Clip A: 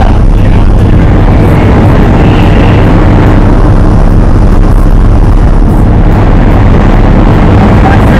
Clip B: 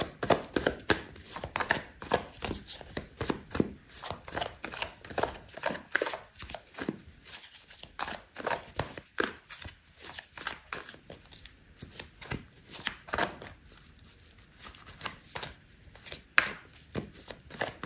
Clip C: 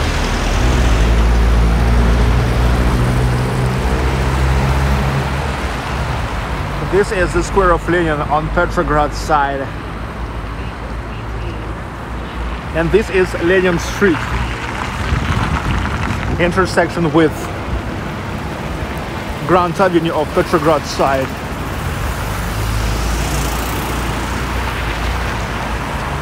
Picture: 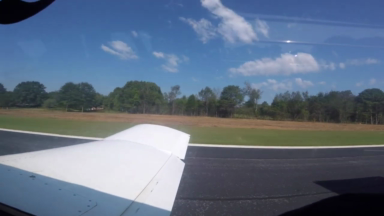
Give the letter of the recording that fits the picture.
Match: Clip A